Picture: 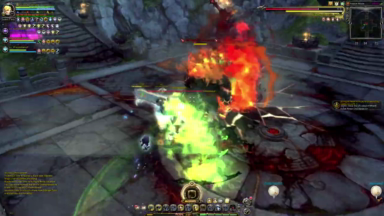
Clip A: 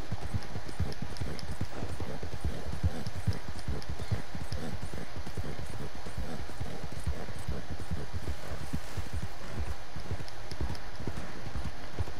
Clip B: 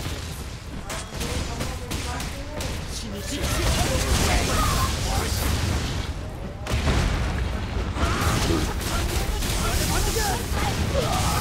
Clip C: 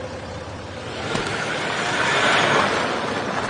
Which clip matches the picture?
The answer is B